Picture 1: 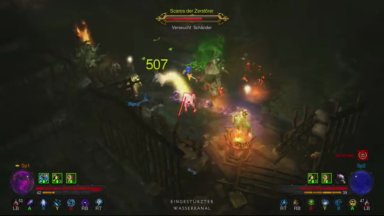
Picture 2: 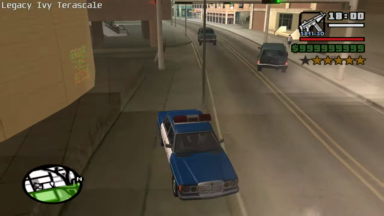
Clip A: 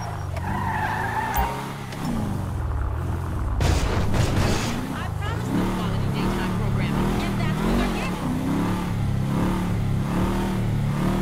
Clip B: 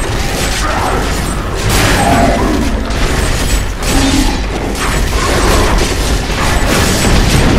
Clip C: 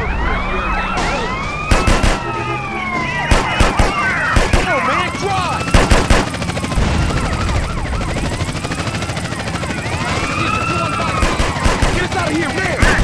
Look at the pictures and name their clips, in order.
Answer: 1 B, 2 C